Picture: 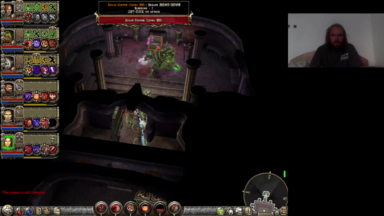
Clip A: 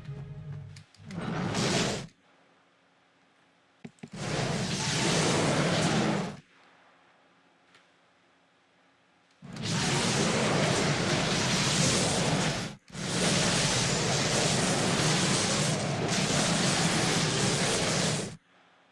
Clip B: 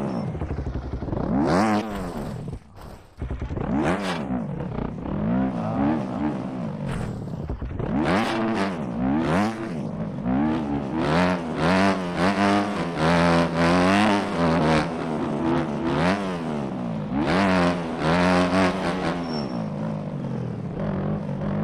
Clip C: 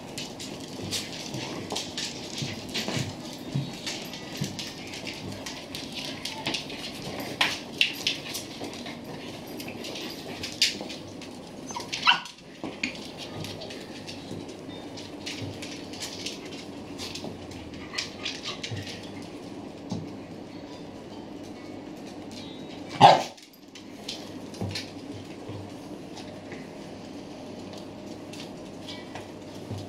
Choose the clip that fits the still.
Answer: A